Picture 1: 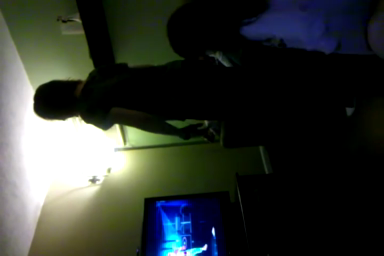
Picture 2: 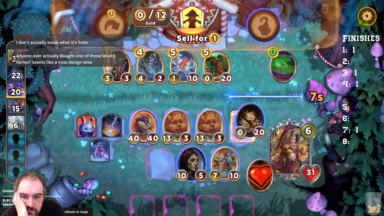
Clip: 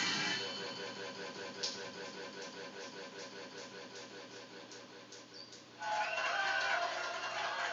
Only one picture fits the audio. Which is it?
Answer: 1